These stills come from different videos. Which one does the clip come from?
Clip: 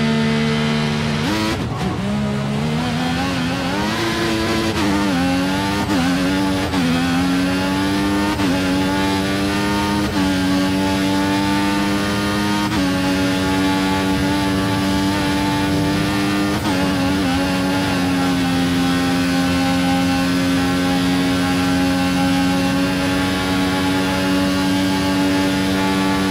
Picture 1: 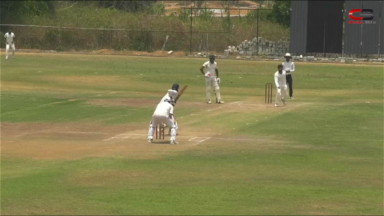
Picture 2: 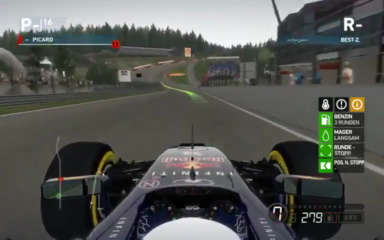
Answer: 2